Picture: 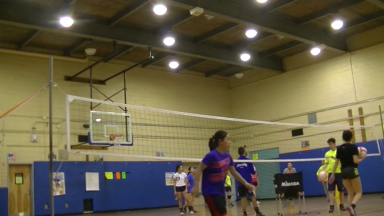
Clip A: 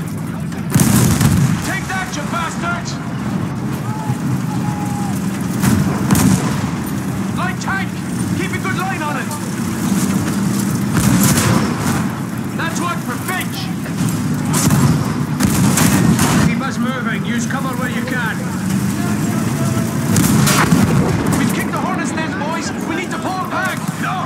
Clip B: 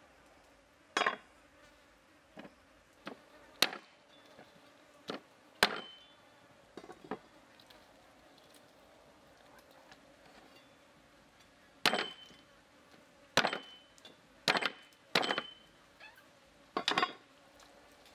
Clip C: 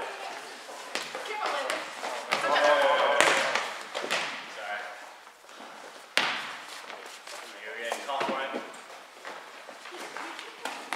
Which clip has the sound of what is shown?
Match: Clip C